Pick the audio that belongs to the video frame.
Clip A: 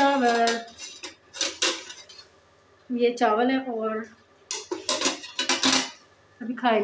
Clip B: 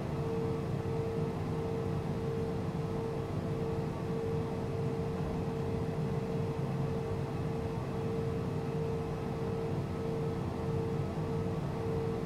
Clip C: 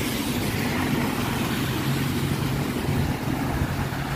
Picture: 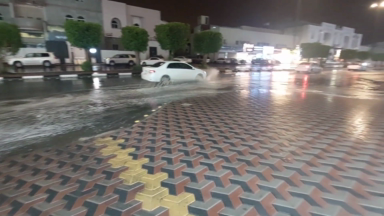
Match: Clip C